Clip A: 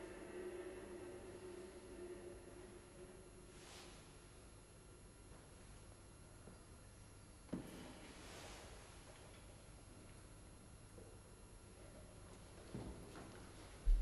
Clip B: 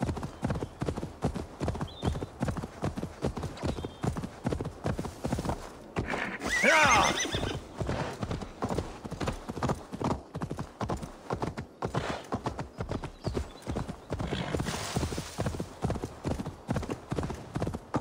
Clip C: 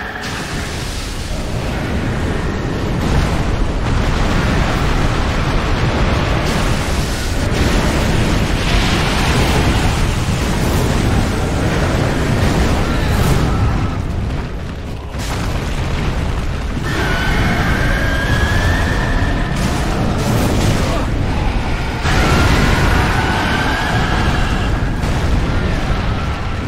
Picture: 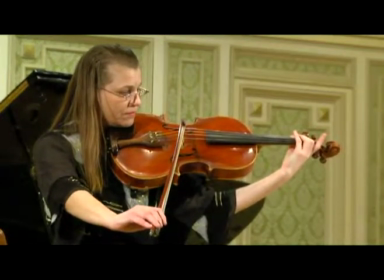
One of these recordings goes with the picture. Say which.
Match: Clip A